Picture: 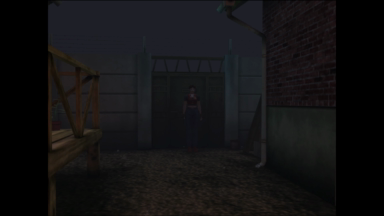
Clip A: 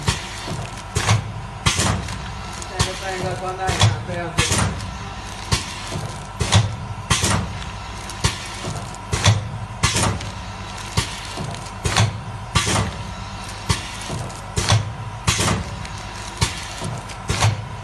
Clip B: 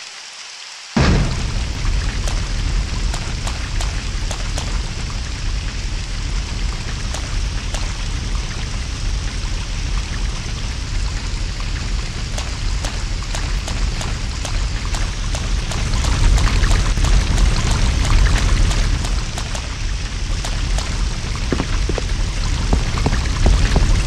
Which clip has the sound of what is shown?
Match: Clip B